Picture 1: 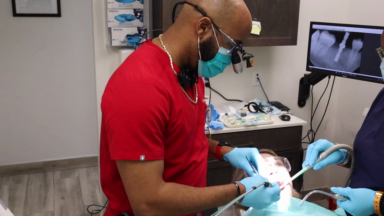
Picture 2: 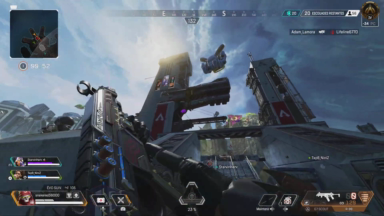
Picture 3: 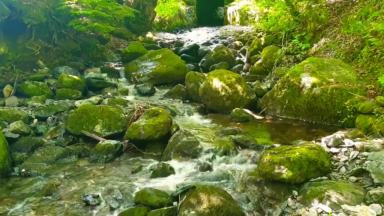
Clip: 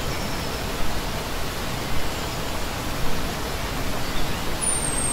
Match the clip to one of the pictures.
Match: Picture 3